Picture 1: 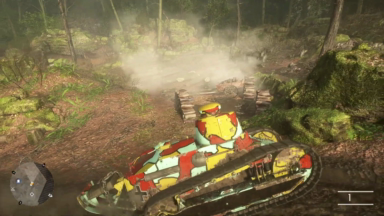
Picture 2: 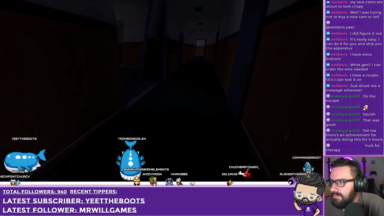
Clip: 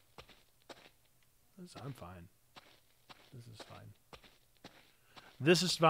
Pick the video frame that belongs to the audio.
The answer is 2